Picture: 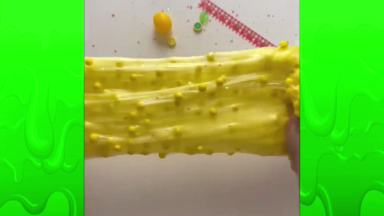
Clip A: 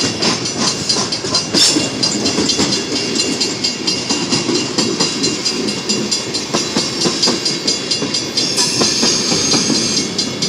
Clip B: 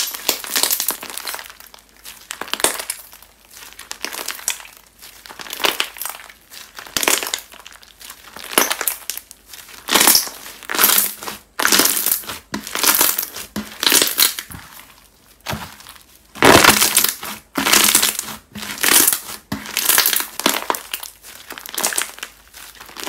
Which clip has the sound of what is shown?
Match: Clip B